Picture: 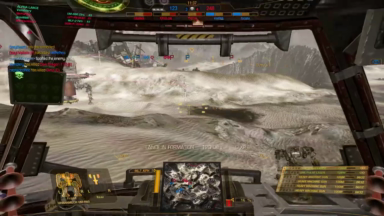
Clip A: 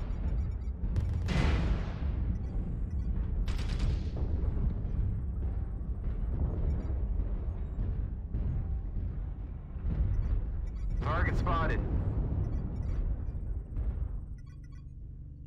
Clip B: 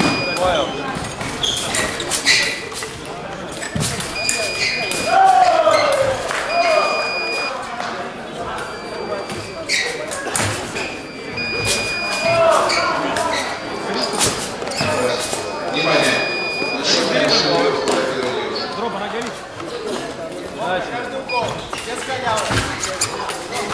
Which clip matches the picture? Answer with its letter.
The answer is A